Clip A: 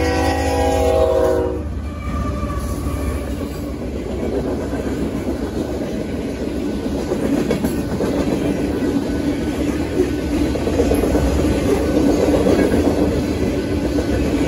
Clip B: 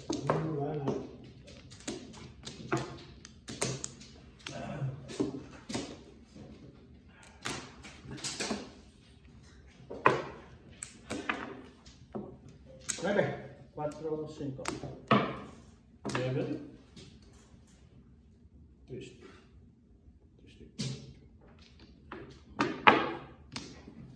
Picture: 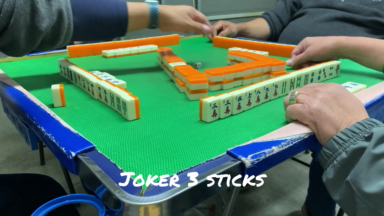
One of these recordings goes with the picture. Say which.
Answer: B